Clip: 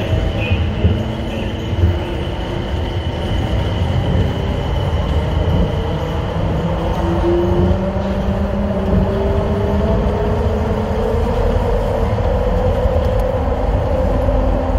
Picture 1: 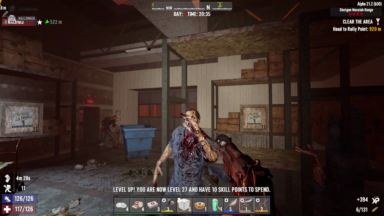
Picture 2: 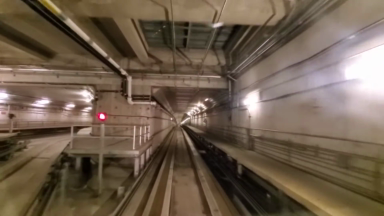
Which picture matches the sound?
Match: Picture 2